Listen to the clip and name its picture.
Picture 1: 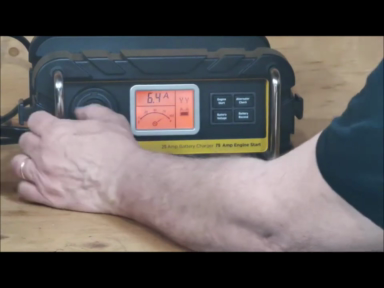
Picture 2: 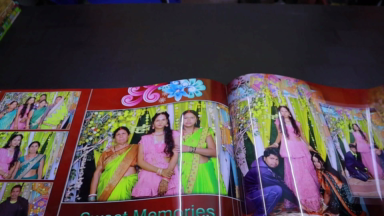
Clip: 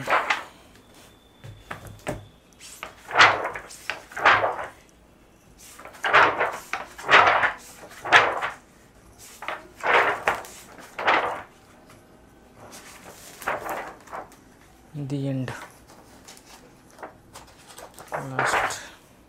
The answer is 2